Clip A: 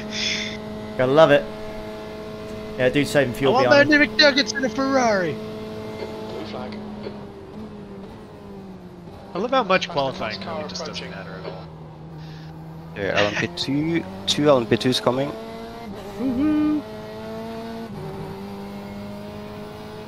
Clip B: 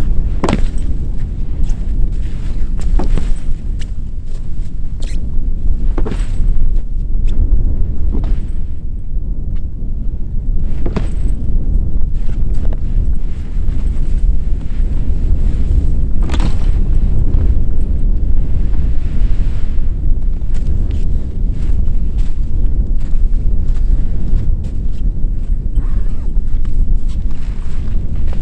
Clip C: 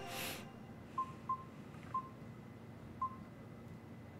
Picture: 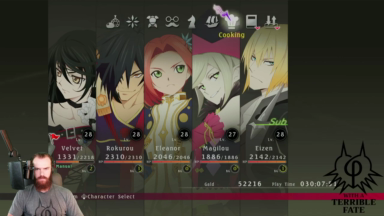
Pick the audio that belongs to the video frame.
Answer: C